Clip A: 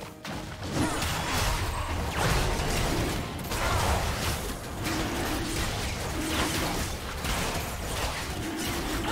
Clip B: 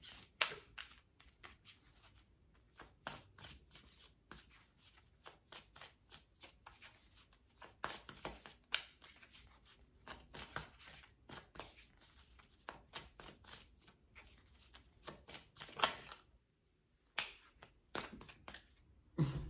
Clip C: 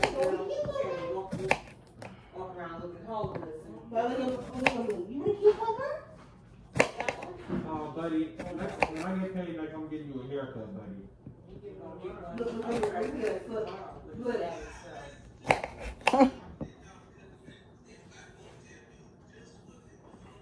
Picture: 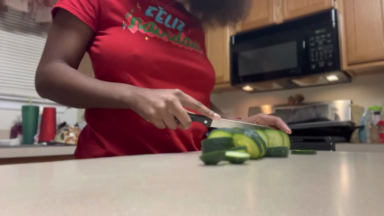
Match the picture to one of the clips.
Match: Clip C